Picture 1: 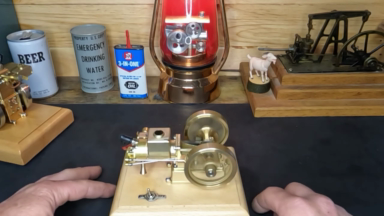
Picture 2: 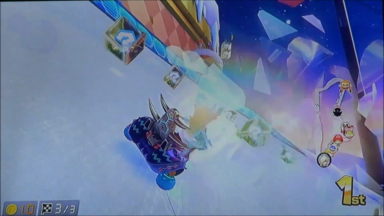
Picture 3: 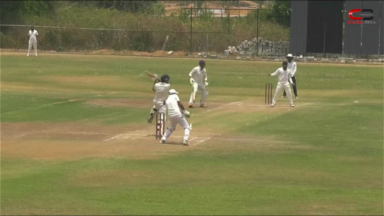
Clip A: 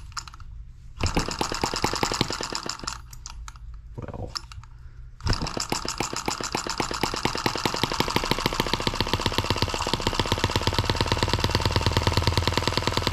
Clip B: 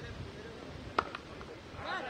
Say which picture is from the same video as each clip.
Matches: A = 1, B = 3